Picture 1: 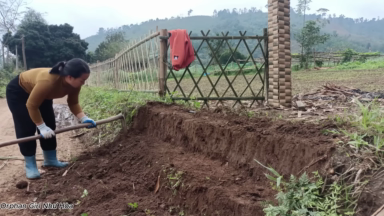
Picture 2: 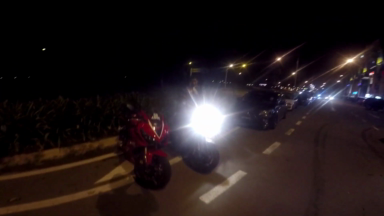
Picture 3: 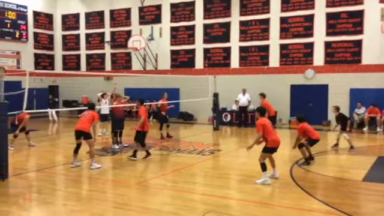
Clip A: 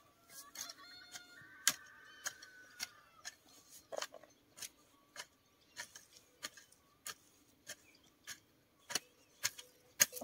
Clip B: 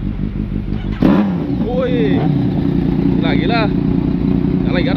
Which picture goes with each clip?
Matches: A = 1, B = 2